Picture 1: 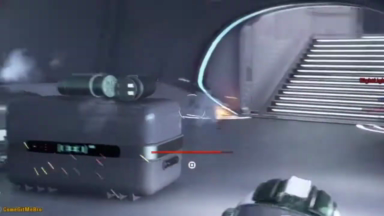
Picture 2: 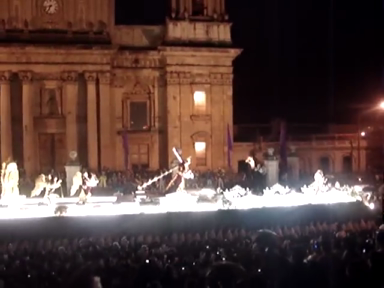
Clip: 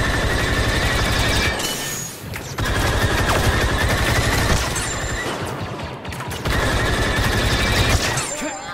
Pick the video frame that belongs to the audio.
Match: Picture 1